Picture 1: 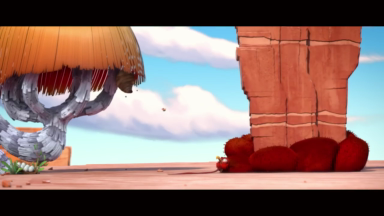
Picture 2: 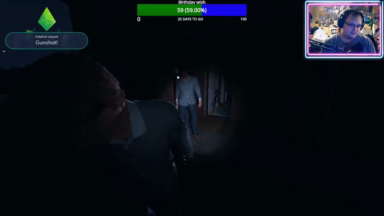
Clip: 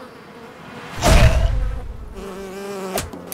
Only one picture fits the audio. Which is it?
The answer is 1